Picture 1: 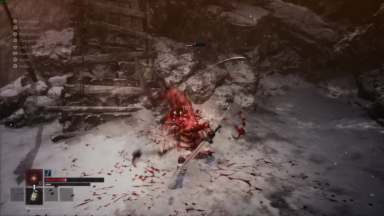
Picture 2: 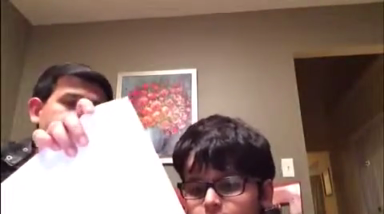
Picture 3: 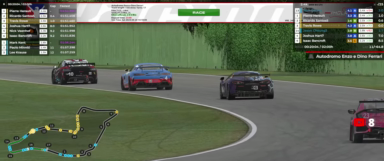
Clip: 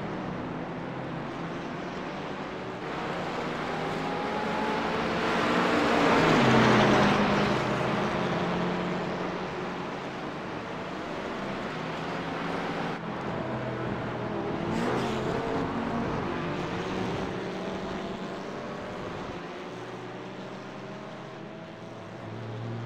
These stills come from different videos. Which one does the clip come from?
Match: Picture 3